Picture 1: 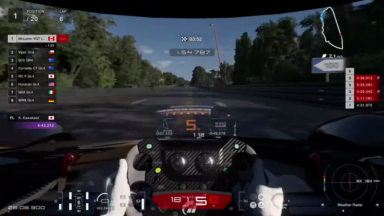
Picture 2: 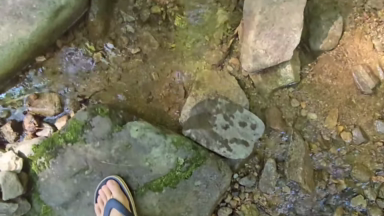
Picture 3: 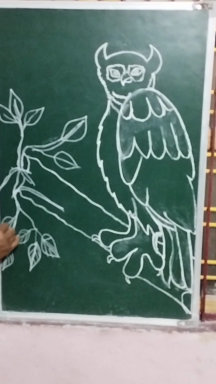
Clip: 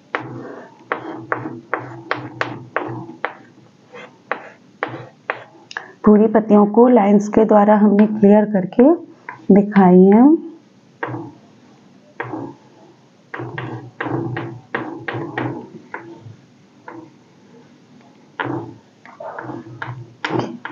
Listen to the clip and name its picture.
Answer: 3